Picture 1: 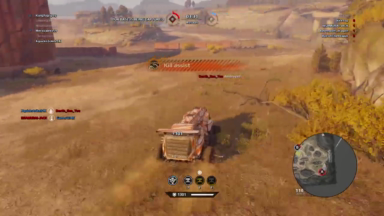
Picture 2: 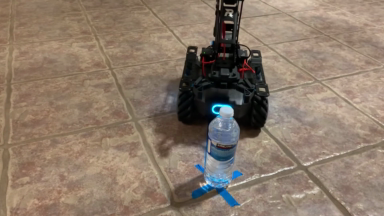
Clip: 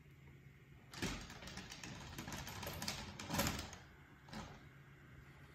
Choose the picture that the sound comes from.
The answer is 2